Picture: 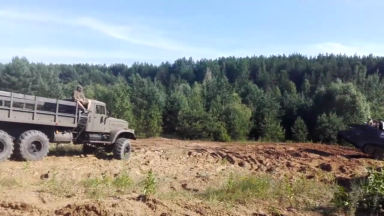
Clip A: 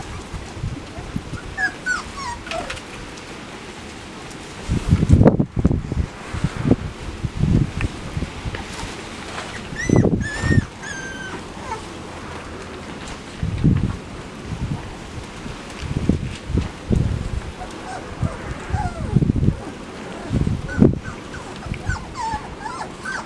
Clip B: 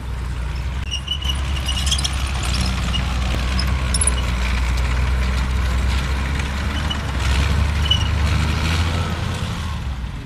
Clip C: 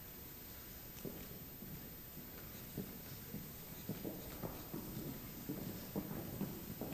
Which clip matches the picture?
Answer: B